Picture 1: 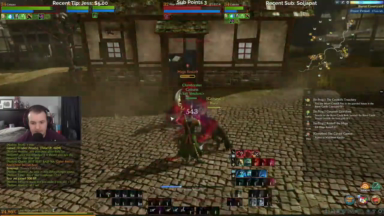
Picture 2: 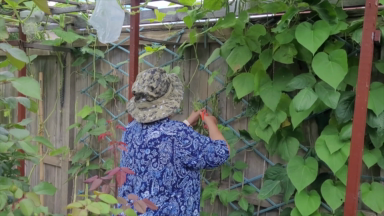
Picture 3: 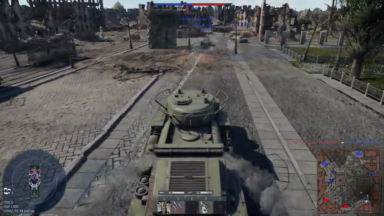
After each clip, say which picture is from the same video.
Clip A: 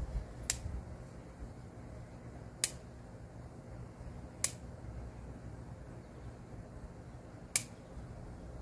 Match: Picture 2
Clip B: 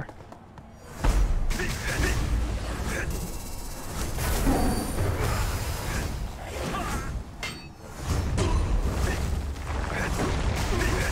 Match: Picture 1